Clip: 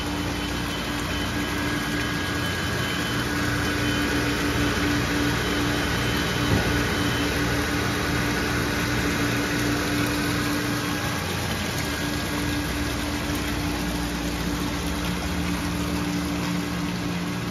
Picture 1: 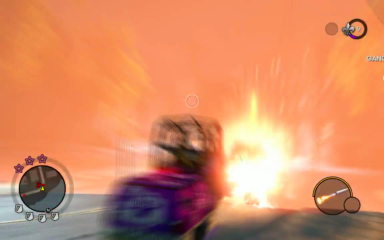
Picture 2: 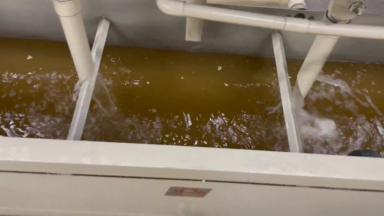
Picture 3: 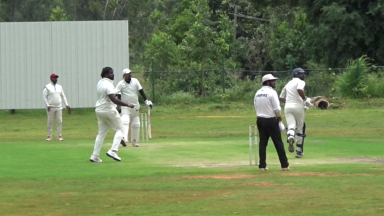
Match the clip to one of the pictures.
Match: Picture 2